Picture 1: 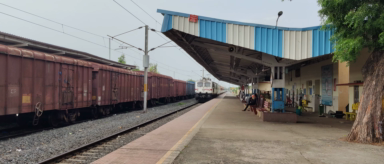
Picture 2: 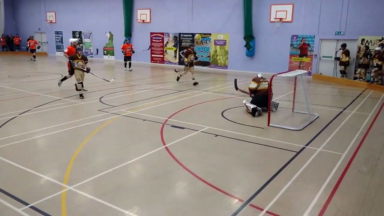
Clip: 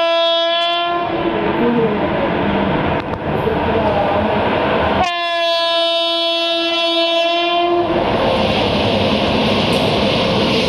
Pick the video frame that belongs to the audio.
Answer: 1